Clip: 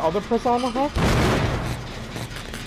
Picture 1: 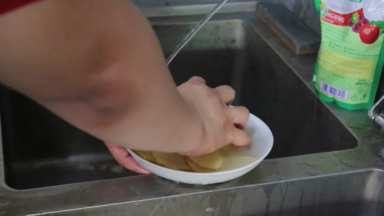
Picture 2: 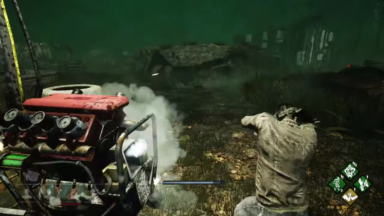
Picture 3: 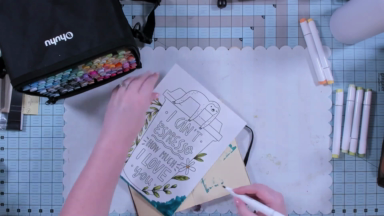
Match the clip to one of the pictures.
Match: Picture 2